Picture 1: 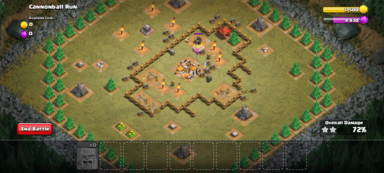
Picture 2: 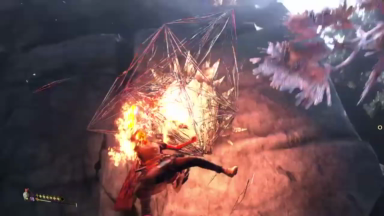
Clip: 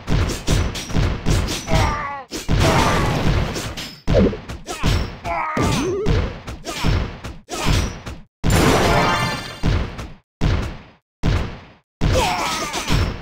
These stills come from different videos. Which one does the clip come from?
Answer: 1